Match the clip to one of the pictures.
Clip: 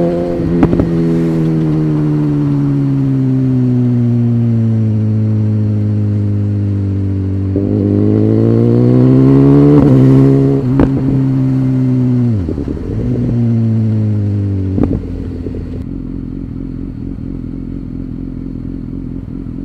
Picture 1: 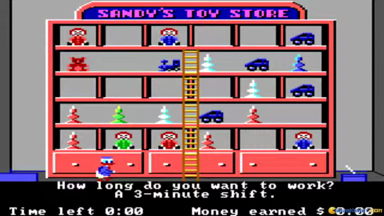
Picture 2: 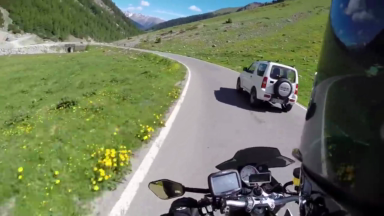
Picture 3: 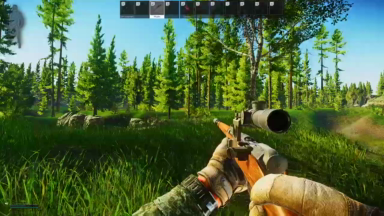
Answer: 2